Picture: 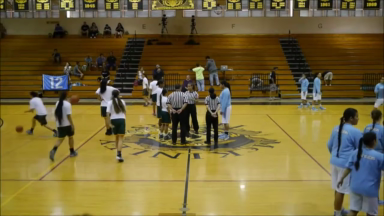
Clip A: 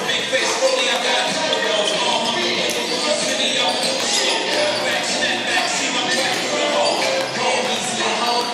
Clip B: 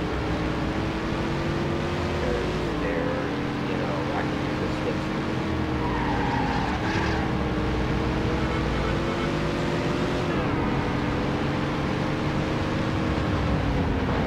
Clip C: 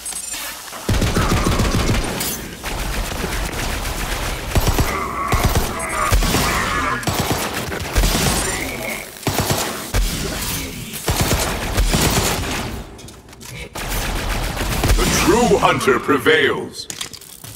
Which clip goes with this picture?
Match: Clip A